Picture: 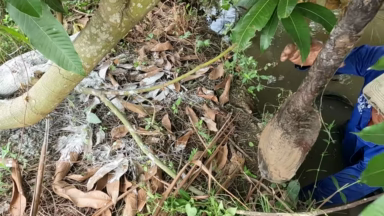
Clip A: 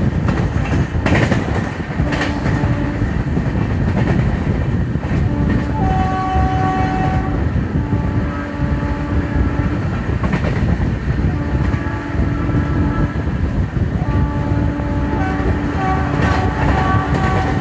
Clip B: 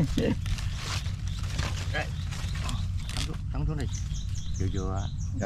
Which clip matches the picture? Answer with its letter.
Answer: B